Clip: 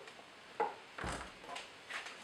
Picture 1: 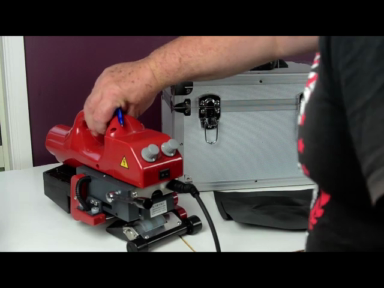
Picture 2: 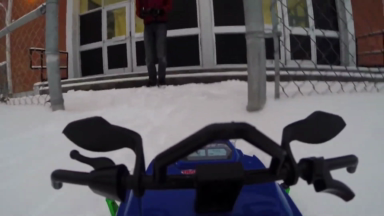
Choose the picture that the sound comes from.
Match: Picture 1